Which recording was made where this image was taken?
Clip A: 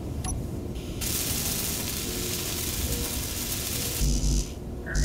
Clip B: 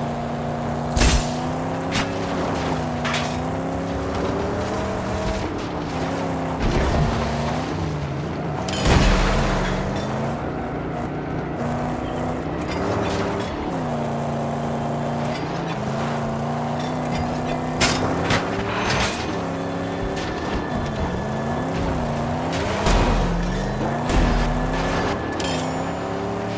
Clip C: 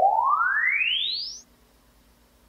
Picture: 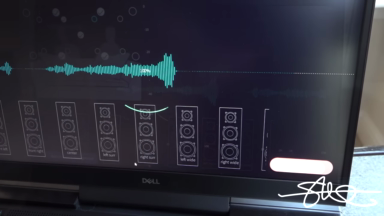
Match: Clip C